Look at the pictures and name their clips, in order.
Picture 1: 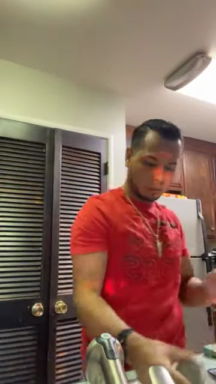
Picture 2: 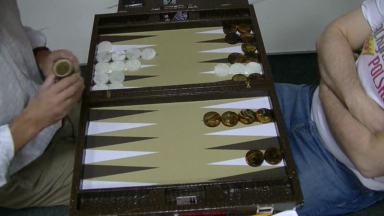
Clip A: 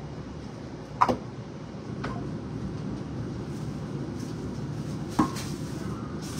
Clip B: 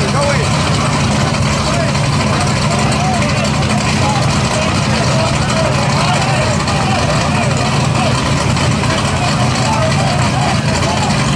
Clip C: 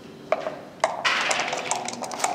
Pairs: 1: A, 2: C